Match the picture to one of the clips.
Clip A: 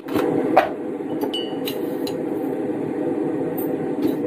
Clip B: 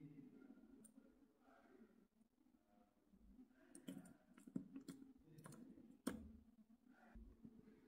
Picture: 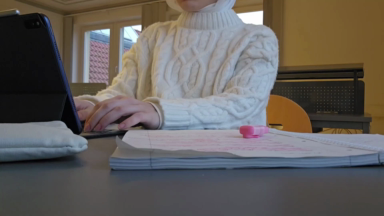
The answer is B